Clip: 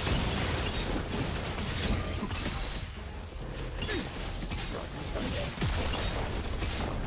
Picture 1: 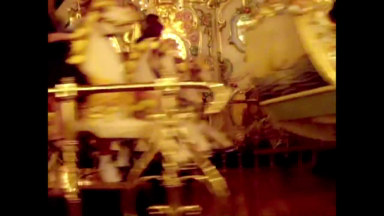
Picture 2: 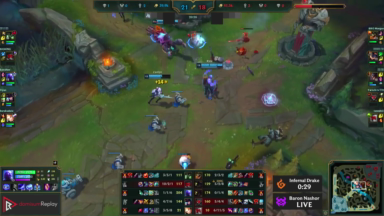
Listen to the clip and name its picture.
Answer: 2